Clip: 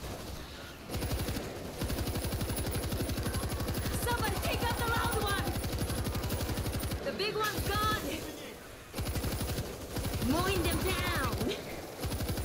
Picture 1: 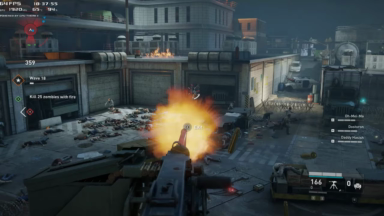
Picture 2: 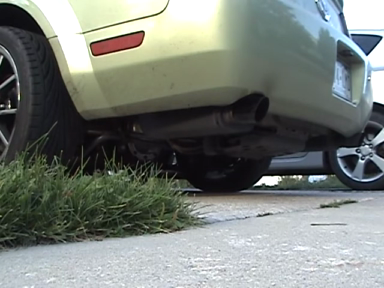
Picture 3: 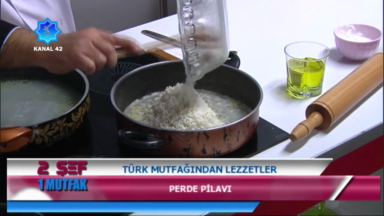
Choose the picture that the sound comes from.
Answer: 1